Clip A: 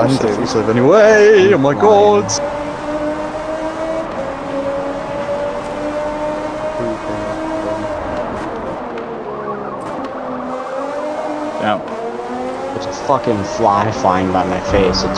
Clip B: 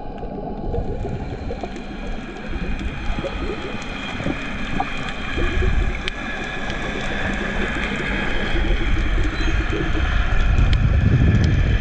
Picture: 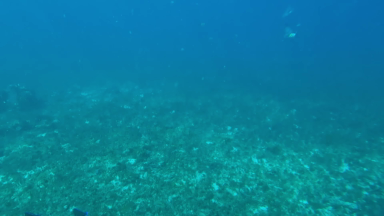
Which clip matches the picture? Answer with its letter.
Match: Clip B